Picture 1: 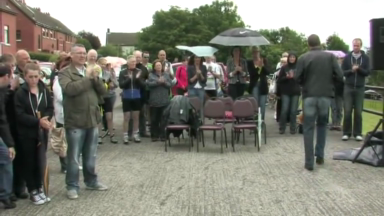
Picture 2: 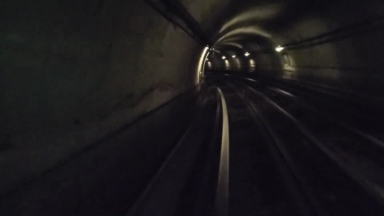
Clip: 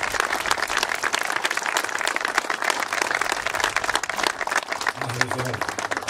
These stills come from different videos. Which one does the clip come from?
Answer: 1